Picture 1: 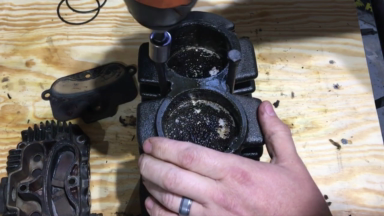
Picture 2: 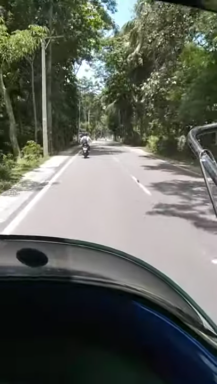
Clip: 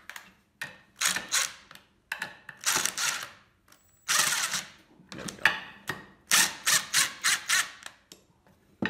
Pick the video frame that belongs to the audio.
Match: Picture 1